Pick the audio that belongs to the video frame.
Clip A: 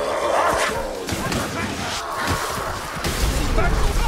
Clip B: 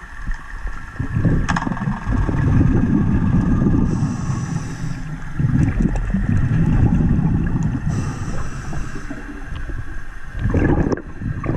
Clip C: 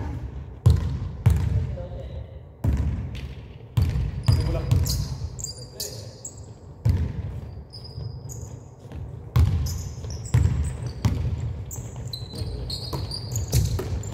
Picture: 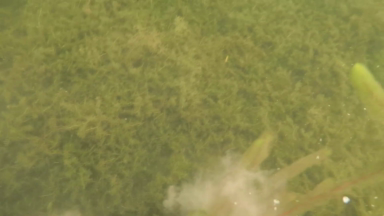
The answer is B